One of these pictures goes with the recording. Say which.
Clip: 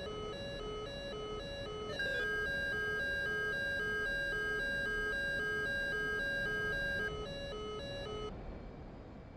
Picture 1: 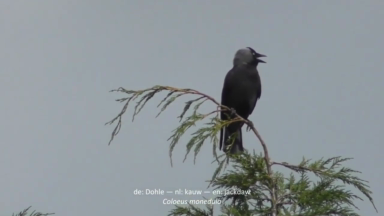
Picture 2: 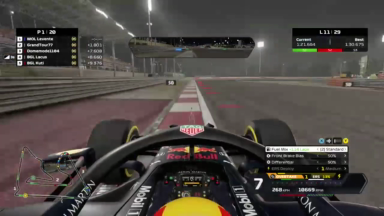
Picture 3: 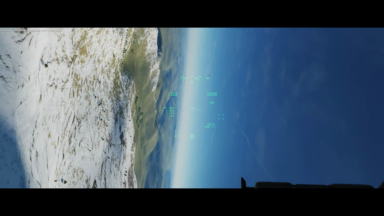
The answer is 3